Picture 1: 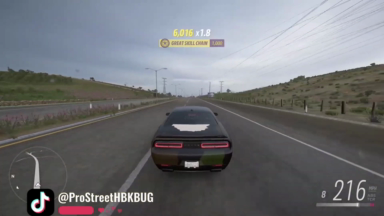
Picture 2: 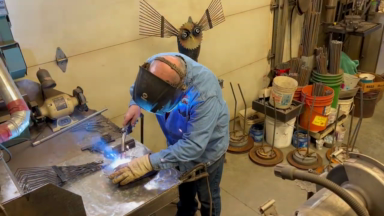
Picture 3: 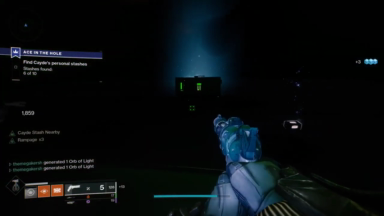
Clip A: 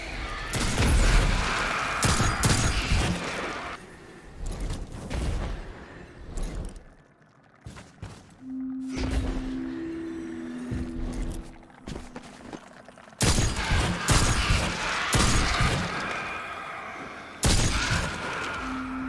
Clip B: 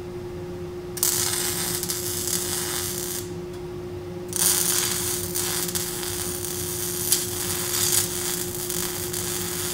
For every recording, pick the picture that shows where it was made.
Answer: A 3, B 2